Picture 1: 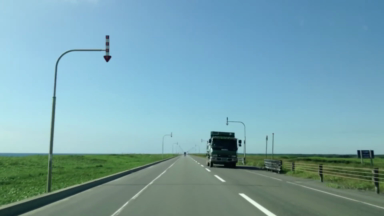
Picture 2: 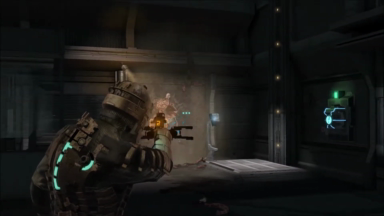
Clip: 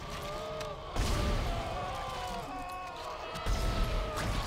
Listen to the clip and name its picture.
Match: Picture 2